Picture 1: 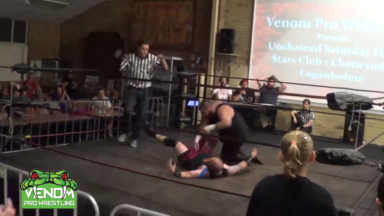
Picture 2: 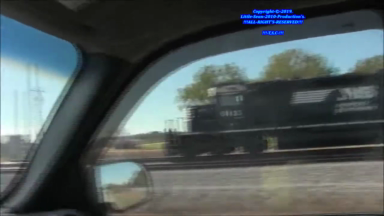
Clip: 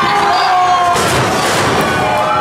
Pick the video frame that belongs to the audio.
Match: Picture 1